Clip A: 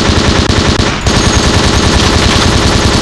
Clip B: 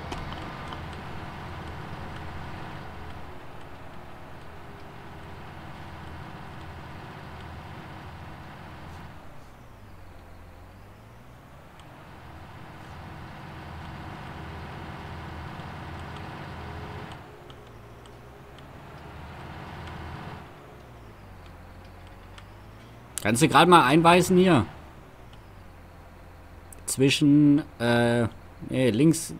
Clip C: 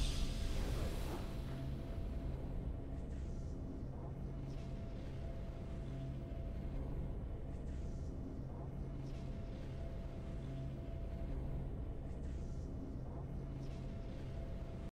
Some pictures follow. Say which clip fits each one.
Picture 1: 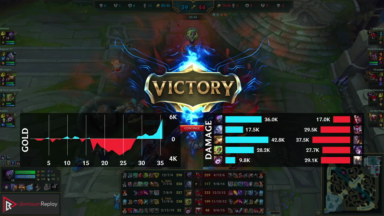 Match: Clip C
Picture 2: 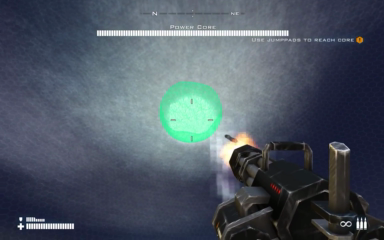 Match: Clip A